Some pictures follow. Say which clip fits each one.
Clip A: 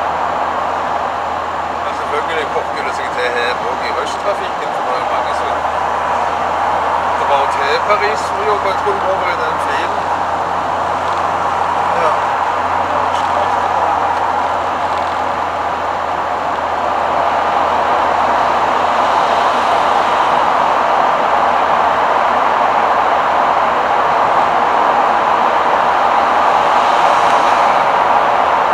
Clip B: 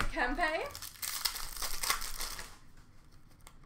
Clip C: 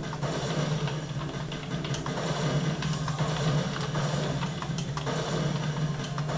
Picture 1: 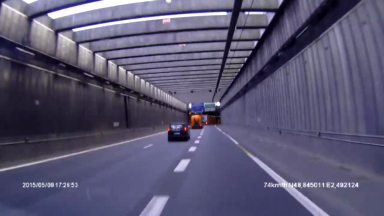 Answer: A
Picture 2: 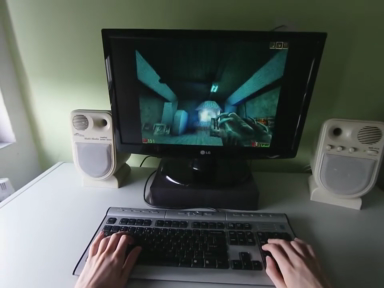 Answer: C